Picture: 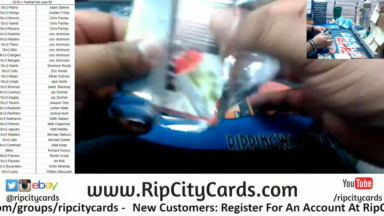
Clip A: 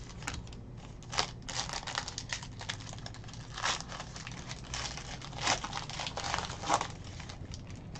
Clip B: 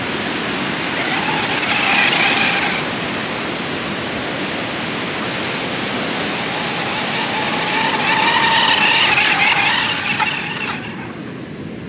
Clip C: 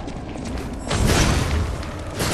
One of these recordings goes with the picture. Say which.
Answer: A